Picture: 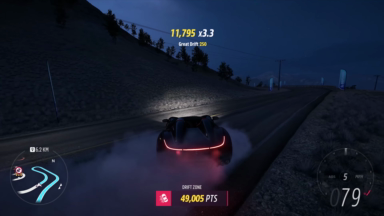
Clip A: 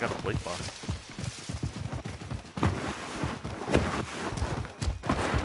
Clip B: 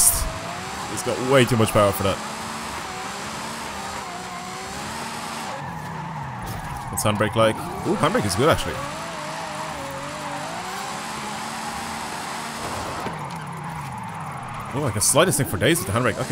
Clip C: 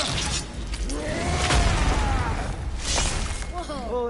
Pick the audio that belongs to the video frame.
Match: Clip B